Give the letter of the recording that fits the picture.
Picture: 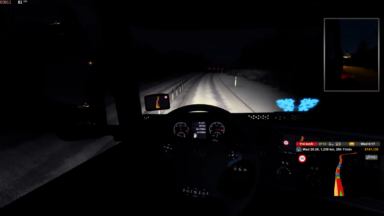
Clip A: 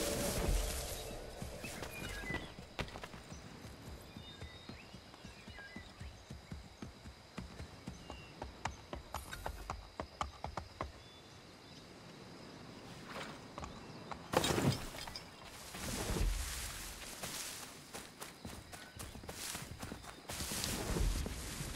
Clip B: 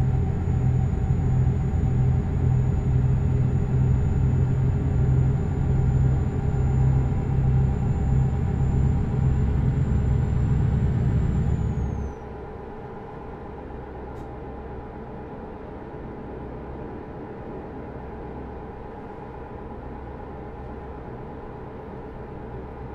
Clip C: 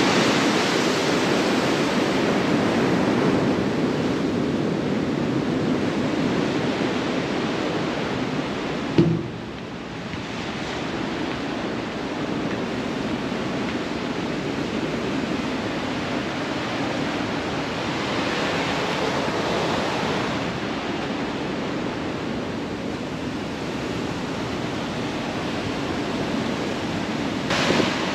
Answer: B